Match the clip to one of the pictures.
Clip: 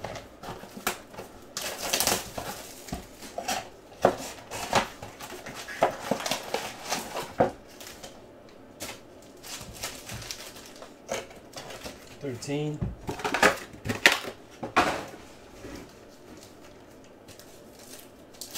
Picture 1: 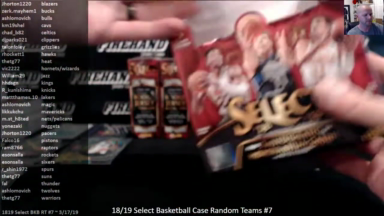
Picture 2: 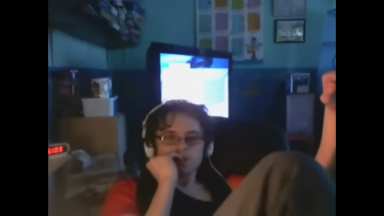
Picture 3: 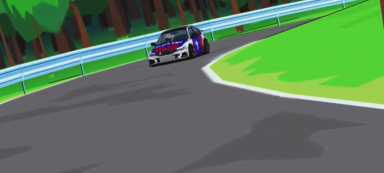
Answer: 1